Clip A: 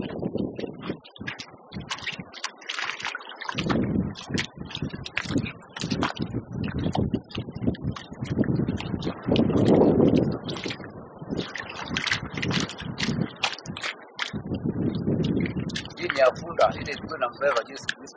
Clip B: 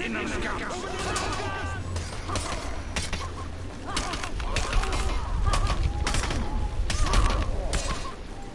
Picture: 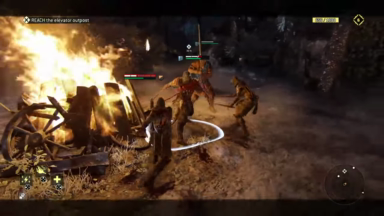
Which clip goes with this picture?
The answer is B